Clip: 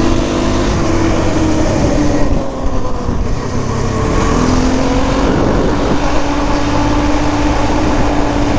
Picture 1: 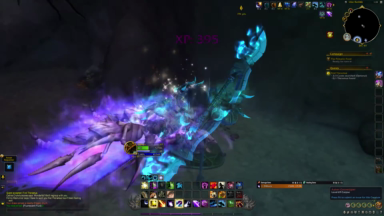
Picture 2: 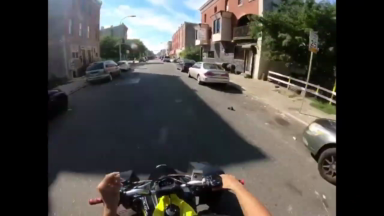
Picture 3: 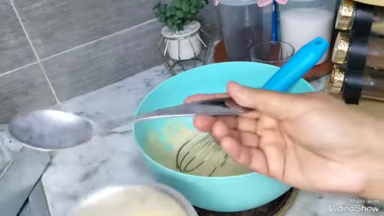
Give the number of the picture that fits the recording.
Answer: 2